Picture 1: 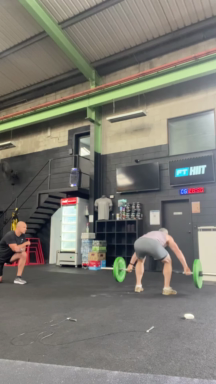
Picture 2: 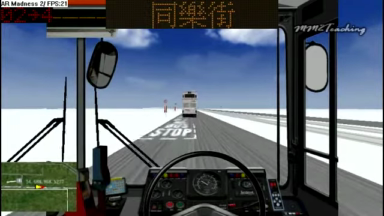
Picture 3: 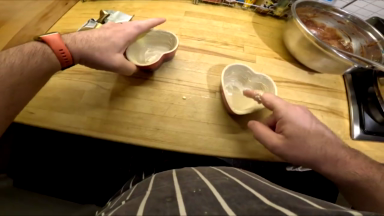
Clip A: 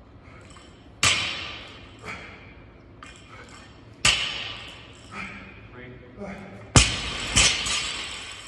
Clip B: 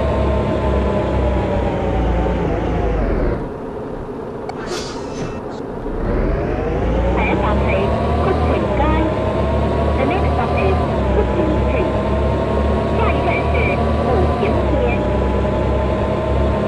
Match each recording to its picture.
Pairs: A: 1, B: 2